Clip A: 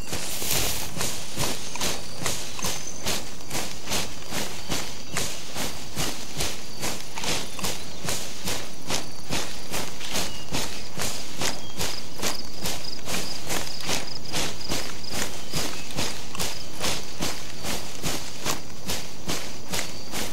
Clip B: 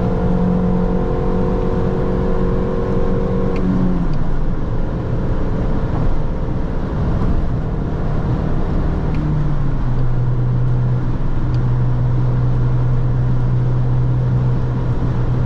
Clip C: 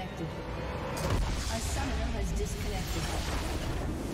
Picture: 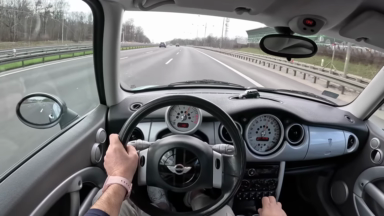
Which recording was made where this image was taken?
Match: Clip B